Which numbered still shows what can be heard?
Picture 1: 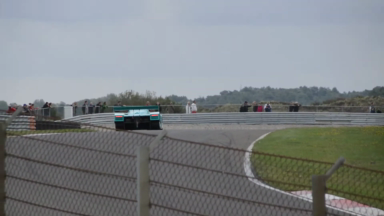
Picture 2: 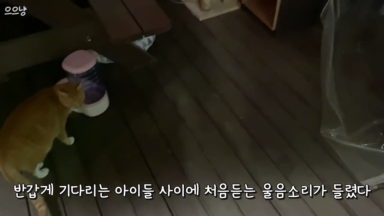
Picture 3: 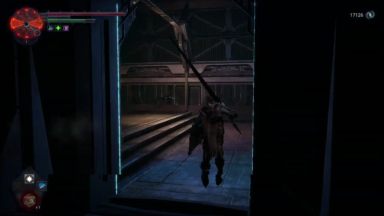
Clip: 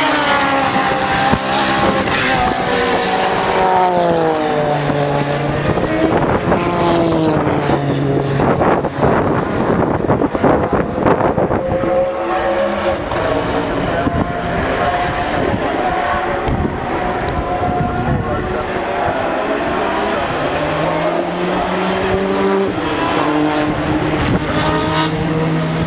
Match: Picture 1